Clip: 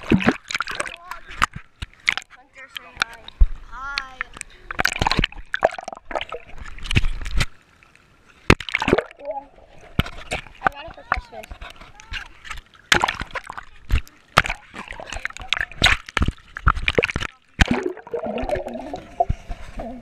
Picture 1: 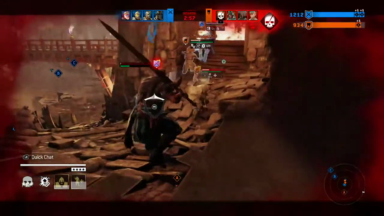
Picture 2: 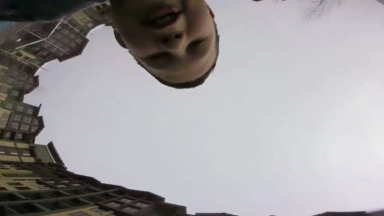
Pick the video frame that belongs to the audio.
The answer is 2